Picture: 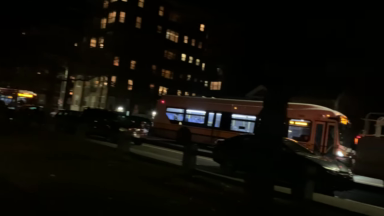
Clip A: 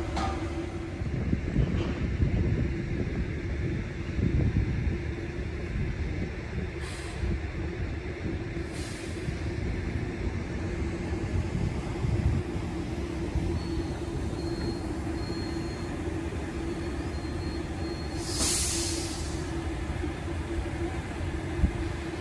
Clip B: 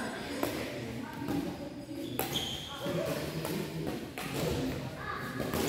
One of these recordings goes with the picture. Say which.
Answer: A